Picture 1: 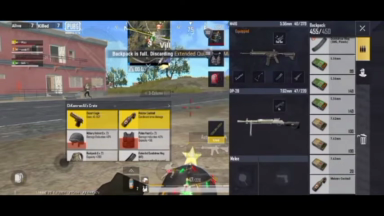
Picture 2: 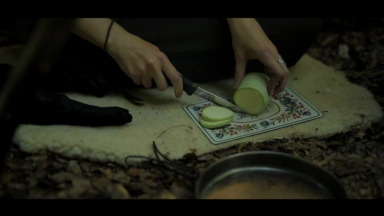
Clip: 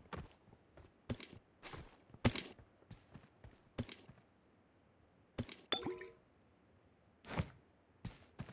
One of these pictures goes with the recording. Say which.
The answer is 1